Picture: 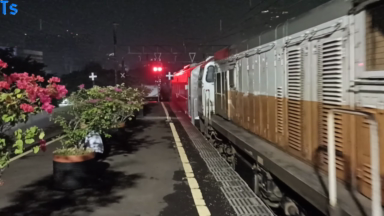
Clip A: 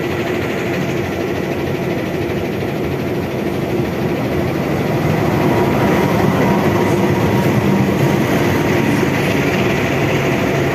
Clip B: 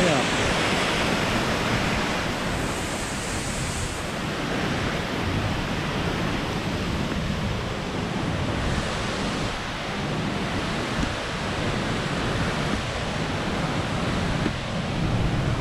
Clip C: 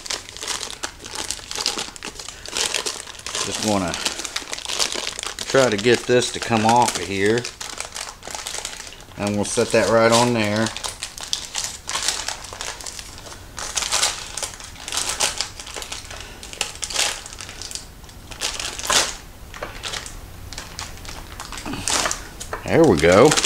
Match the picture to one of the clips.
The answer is A